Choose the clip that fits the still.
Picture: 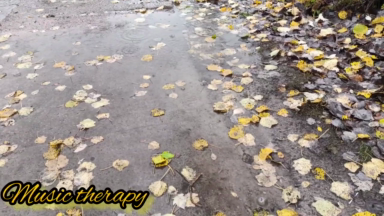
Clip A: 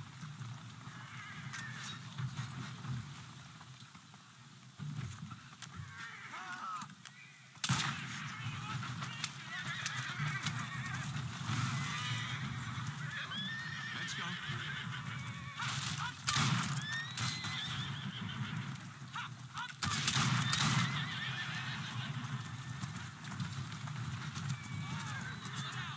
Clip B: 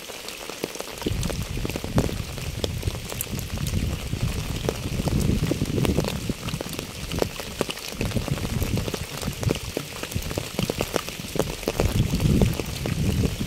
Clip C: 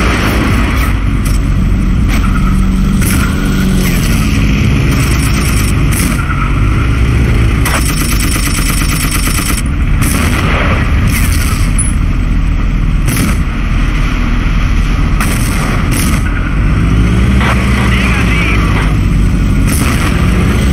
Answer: B